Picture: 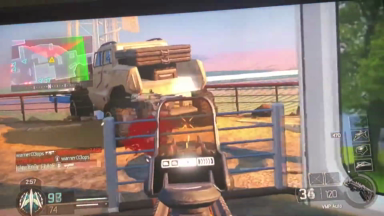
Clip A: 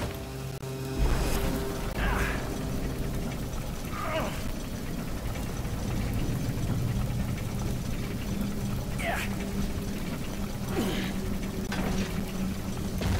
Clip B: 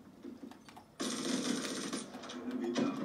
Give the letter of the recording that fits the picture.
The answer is B